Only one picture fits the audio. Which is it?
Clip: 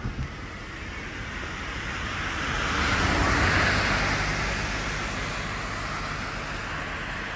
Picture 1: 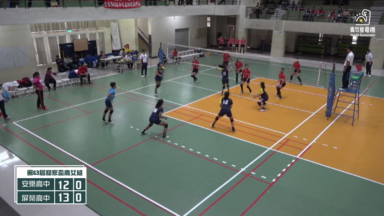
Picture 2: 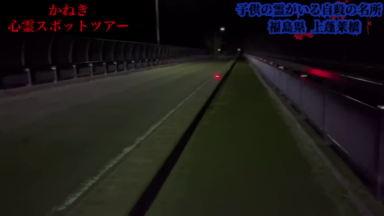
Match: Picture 2